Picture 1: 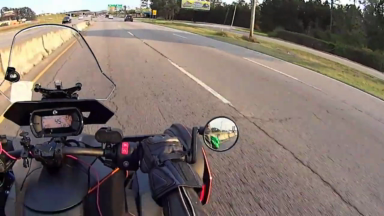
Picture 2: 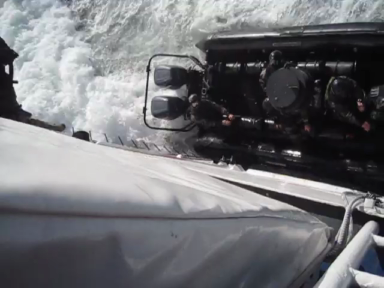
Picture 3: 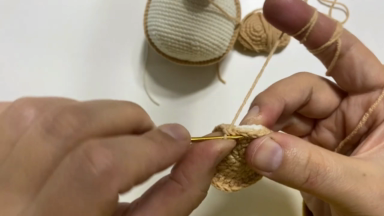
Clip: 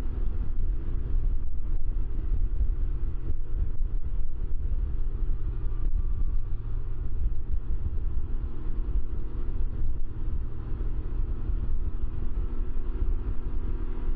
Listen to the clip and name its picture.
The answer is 1